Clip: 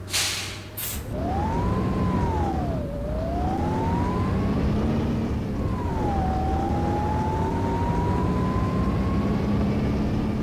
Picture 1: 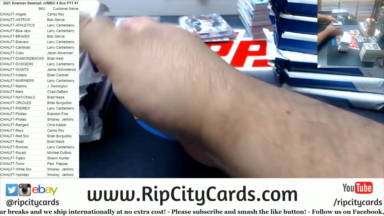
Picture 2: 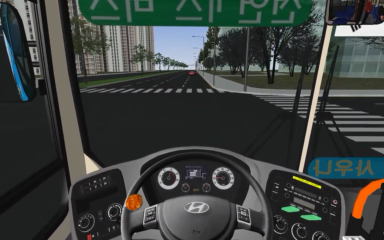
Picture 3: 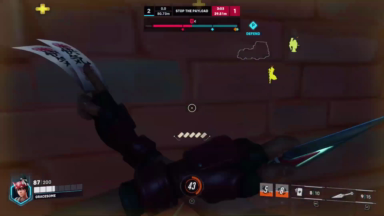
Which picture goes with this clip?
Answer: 2